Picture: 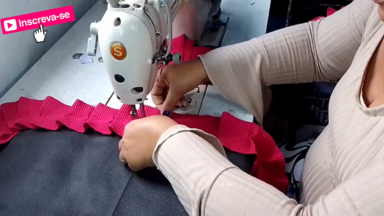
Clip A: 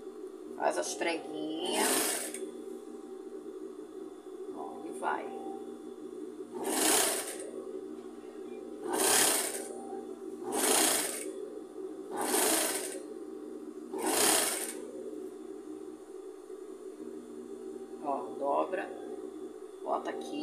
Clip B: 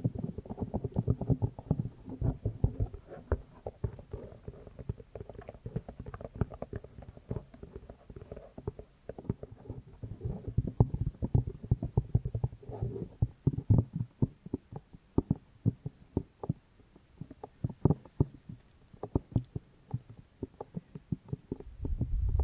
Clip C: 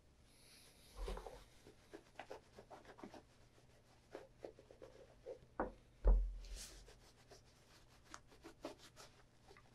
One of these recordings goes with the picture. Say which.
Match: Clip A